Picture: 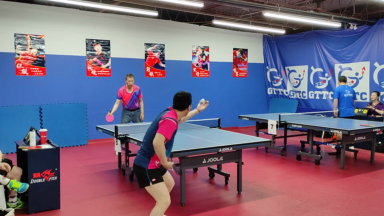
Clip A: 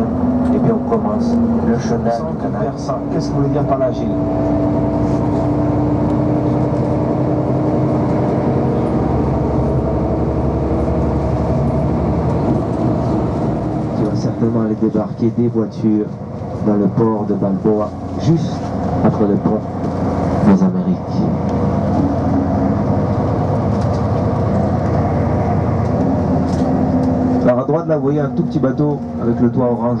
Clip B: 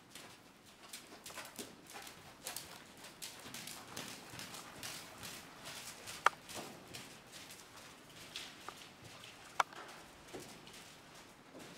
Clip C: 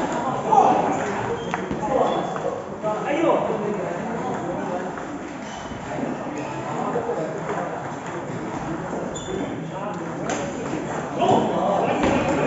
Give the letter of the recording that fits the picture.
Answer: C